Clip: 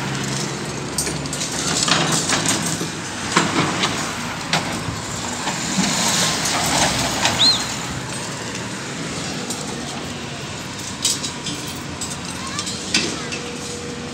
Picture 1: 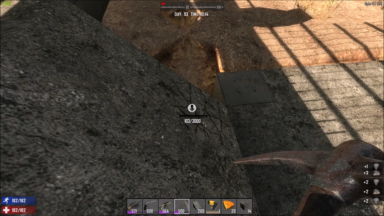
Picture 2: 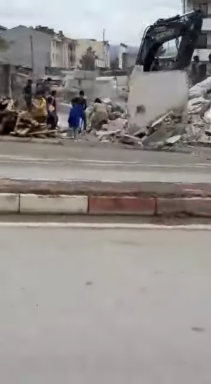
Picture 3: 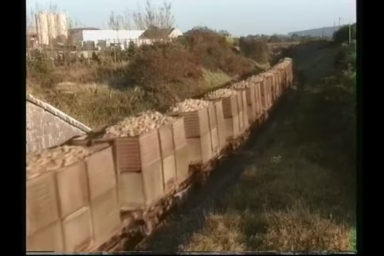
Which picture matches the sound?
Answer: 2